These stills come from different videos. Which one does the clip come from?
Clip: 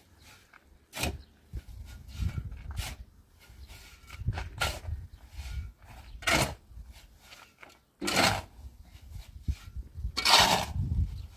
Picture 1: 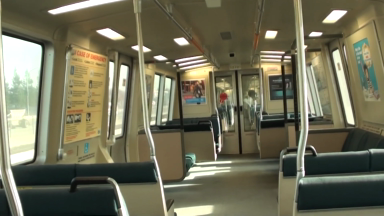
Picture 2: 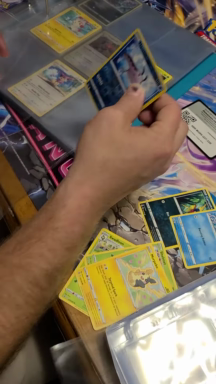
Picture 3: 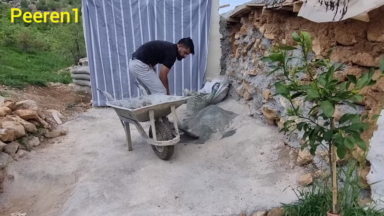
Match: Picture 3